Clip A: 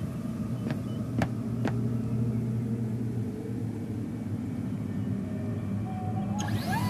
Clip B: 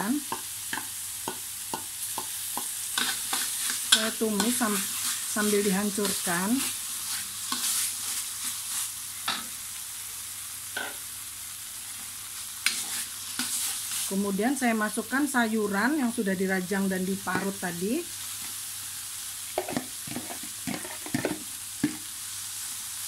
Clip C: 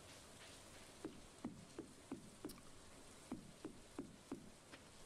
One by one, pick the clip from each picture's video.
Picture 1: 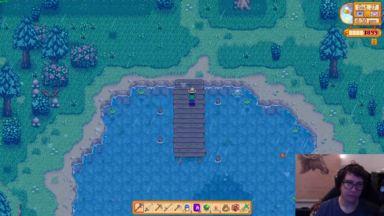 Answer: C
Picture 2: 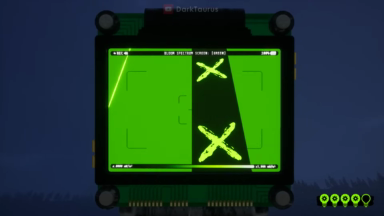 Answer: A